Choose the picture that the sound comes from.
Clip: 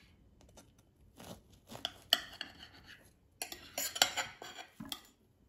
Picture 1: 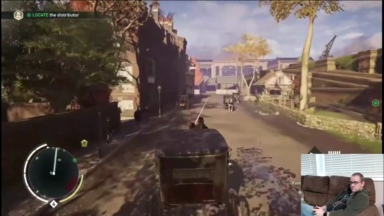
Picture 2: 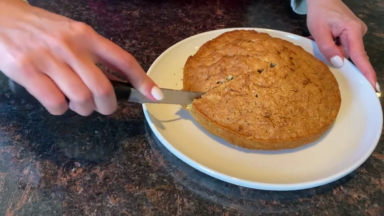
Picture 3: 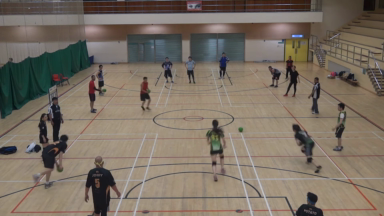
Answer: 2